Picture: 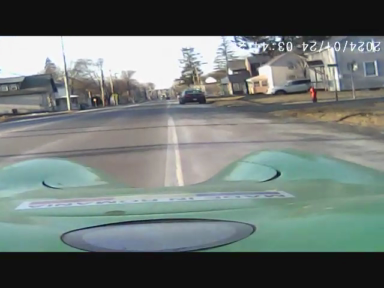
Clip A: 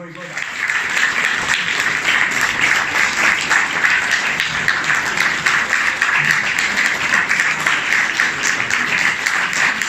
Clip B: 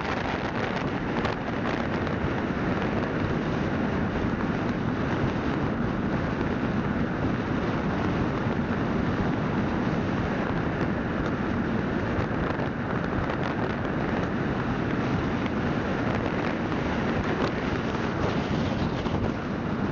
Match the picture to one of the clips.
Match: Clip B